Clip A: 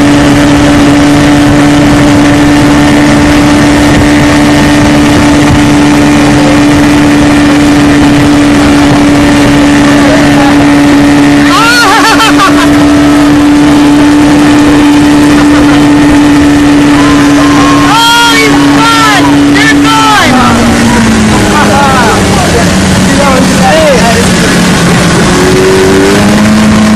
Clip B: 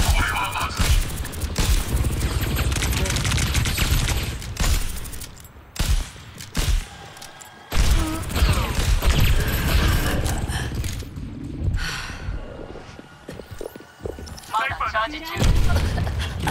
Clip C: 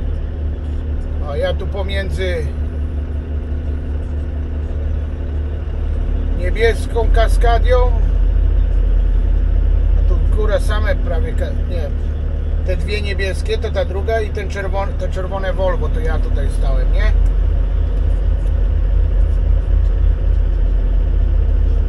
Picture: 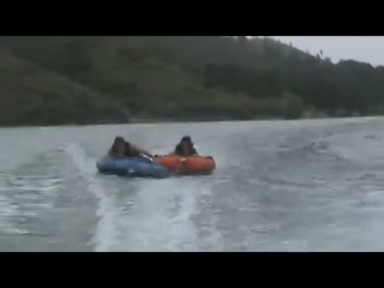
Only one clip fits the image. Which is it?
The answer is A